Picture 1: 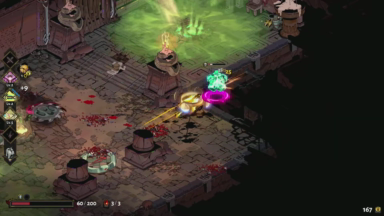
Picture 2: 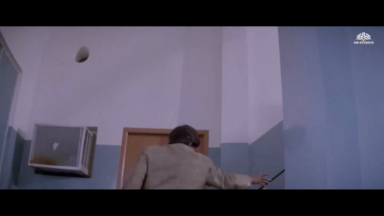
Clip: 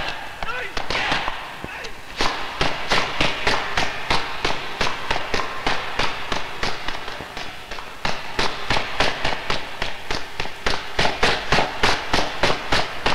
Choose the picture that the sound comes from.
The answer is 2